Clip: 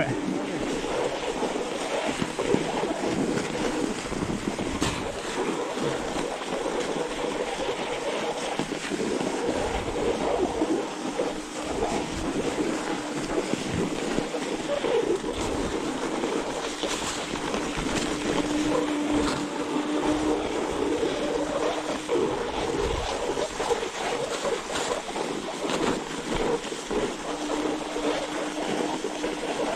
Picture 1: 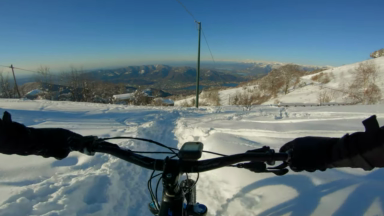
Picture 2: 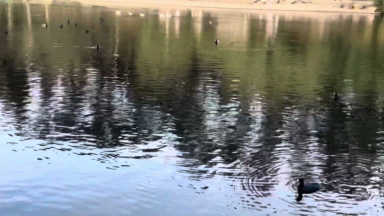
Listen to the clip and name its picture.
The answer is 1